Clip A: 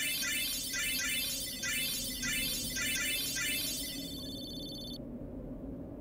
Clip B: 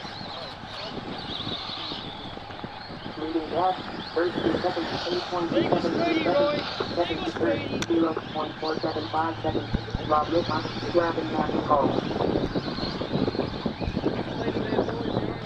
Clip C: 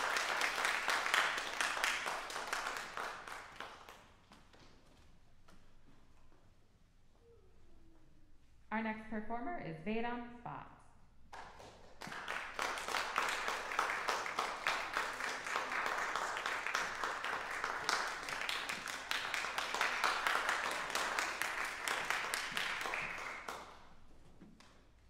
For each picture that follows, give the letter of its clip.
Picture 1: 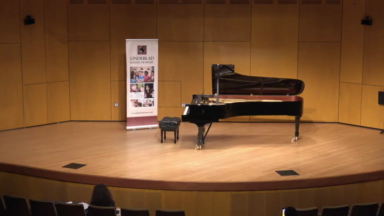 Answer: C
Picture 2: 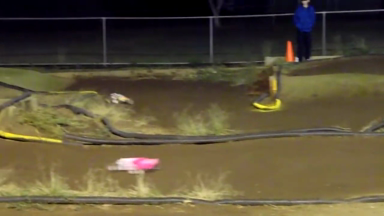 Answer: B